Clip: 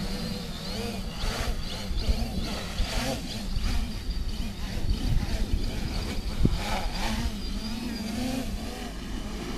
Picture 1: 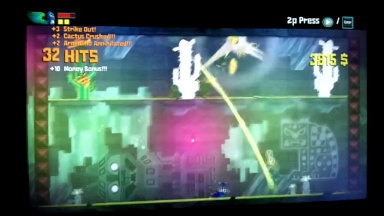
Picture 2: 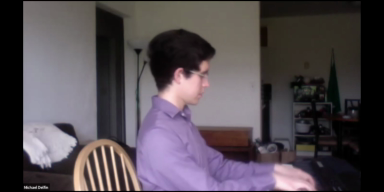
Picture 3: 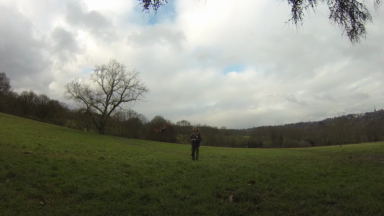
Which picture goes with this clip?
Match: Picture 3